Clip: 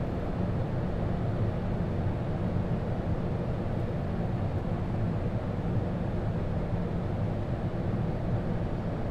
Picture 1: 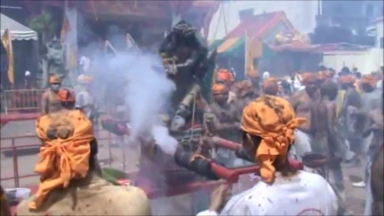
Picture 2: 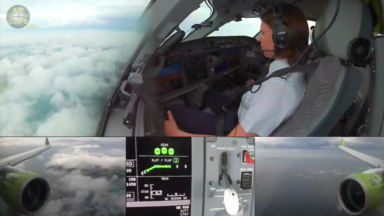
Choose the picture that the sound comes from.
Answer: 2